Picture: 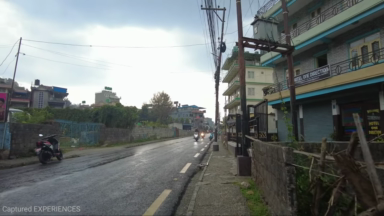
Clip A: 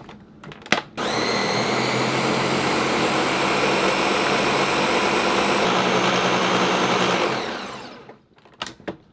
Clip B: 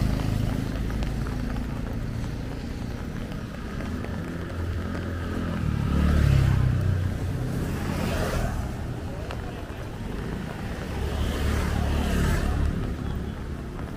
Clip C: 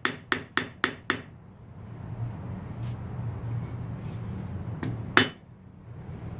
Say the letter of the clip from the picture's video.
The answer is B